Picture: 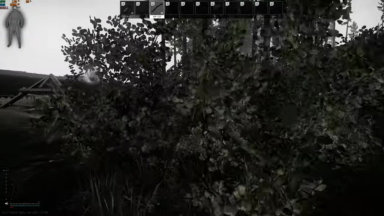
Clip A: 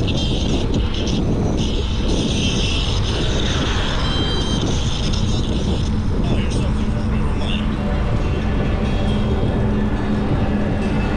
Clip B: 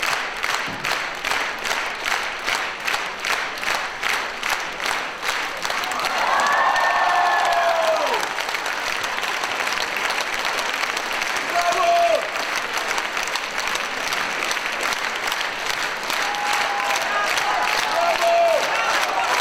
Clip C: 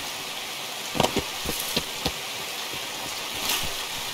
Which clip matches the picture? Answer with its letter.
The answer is C